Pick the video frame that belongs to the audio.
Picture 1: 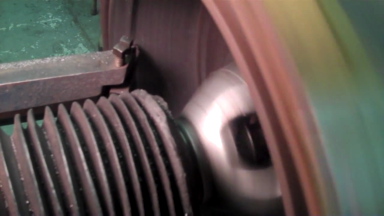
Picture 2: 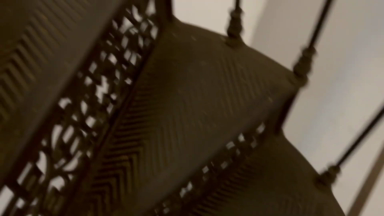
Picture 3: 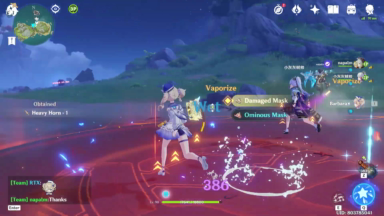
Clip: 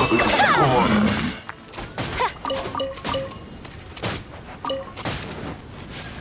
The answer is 3